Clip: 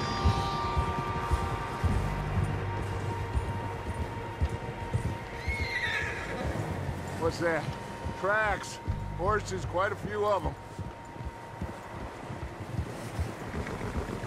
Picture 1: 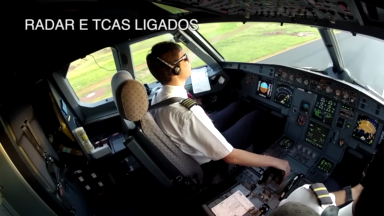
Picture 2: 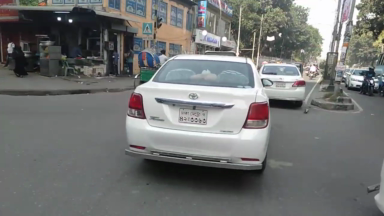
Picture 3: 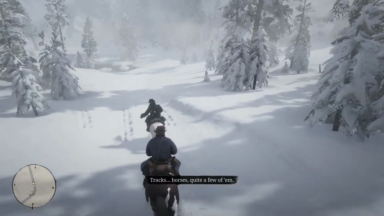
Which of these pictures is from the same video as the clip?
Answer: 3